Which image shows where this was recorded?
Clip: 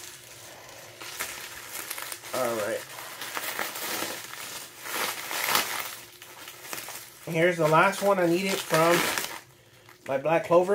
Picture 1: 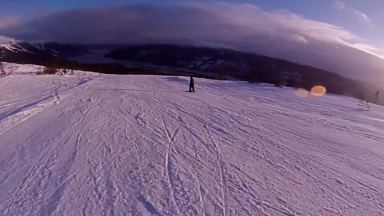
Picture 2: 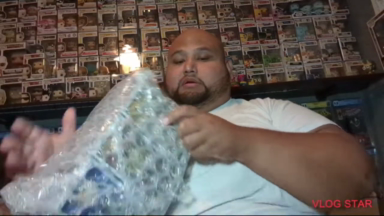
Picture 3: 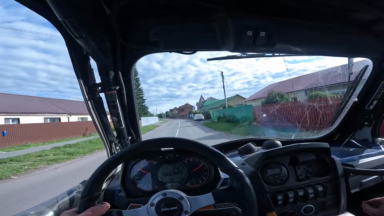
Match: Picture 2